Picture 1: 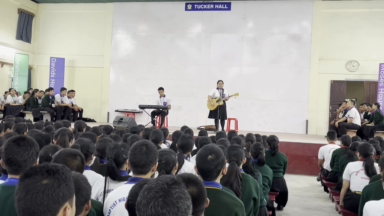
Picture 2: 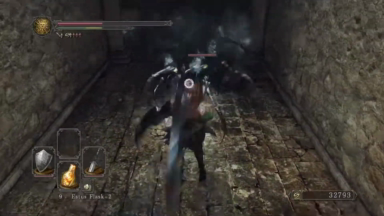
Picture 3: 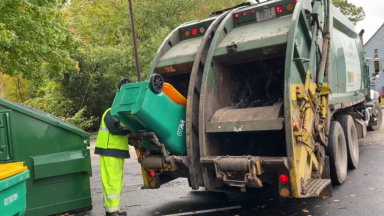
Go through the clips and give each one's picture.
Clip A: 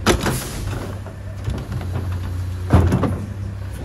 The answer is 3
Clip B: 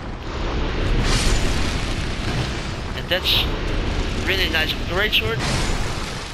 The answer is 2